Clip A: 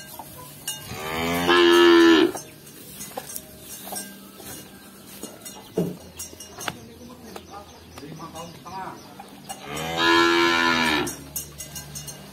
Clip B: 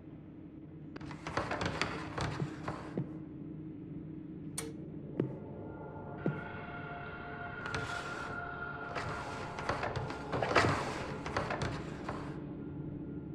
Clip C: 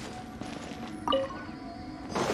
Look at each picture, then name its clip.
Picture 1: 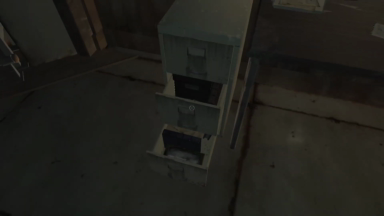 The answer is B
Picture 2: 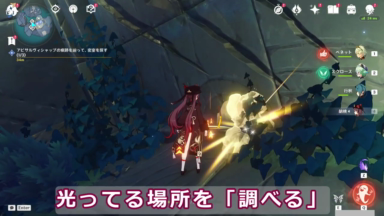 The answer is C